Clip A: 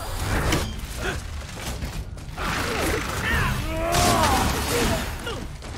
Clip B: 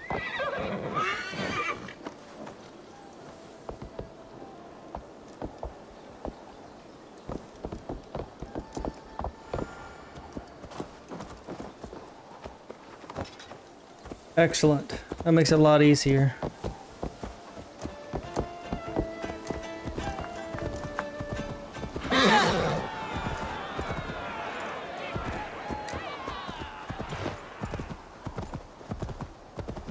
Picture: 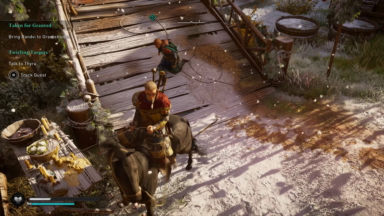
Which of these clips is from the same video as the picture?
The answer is B